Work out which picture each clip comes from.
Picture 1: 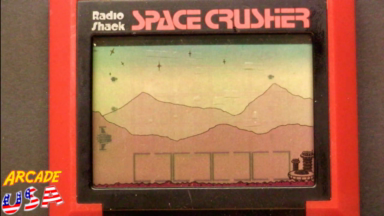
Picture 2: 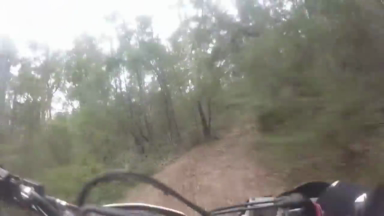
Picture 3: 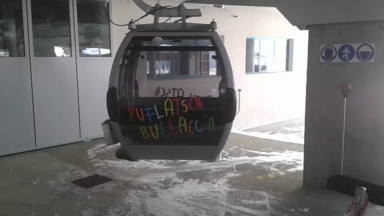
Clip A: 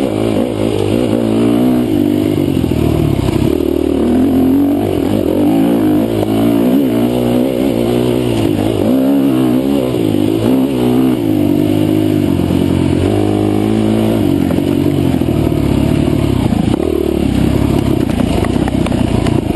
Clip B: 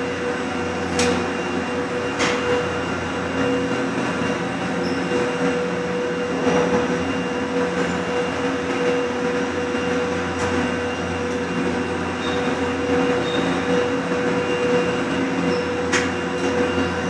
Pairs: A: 2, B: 3